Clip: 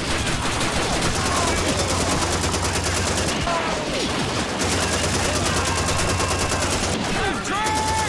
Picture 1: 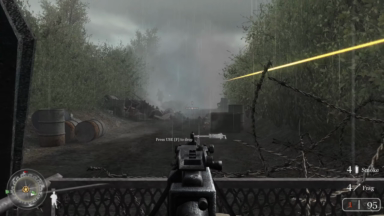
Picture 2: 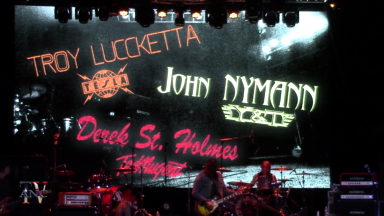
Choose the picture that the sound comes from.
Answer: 1